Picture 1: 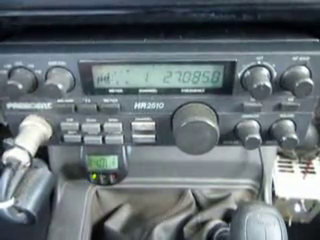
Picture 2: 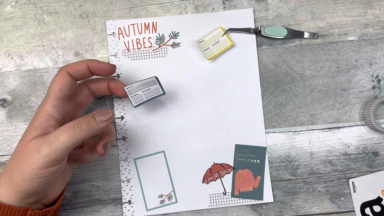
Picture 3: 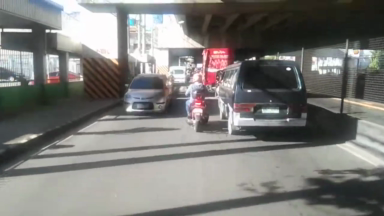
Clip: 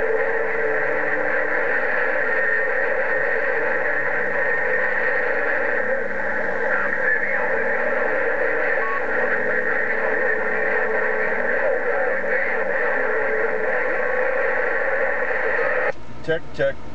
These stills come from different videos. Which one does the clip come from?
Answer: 1